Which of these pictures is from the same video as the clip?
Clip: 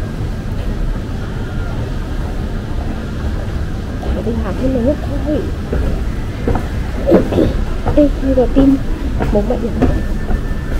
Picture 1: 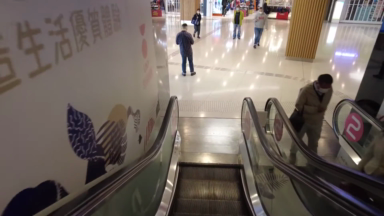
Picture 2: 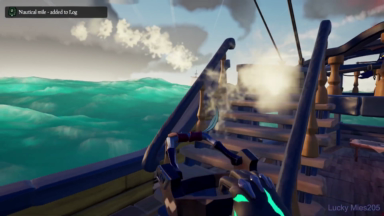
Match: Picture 1